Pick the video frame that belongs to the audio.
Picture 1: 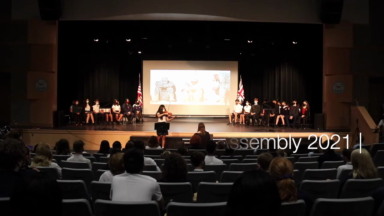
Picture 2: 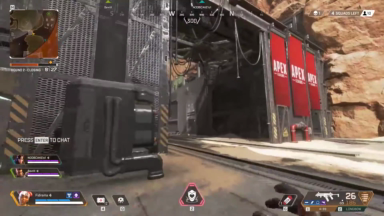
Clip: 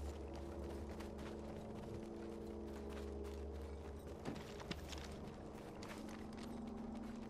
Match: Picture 2